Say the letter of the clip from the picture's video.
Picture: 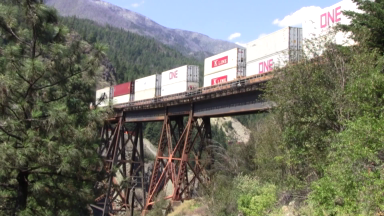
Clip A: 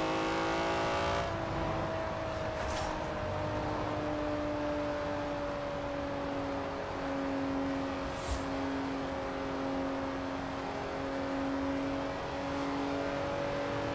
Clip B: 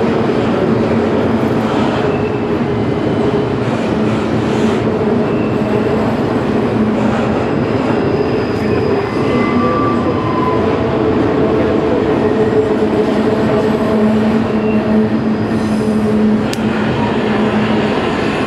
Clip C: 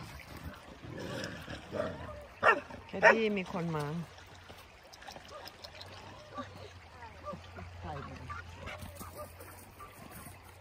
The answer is B